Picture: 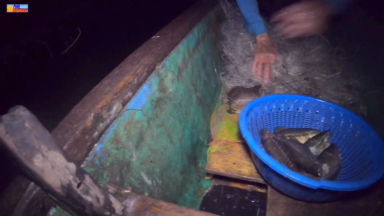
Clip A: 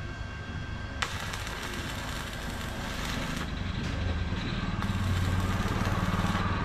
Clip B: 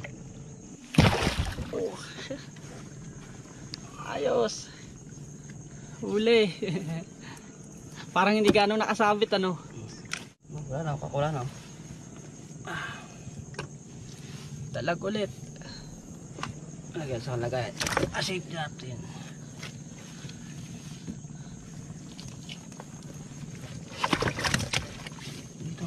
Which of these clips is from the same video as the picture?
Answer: B